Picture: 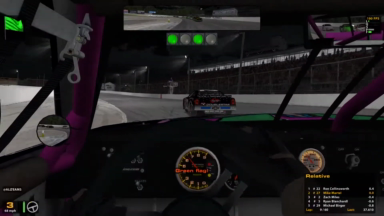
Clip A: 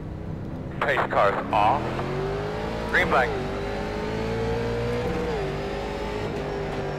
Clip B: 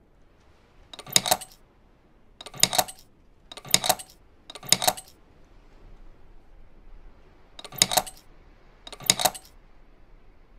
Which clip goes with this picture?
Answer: A